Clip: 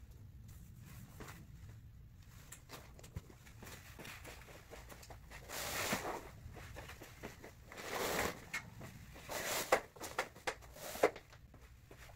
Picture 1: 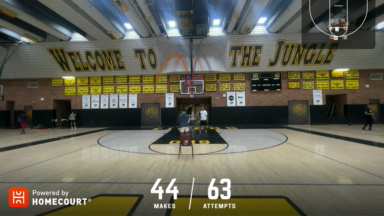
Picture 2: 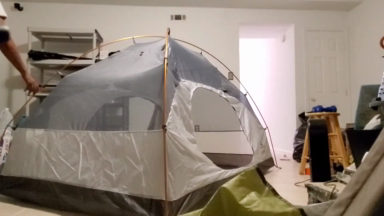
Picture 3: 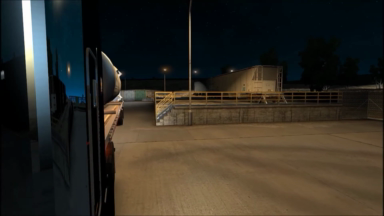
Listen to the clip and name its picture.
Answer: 2